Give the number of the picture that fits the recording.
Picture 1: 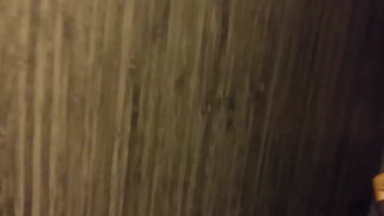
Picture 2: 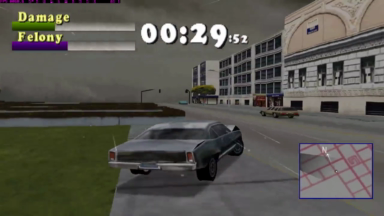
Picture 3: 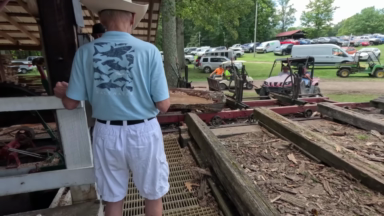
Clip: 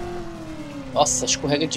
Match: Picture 2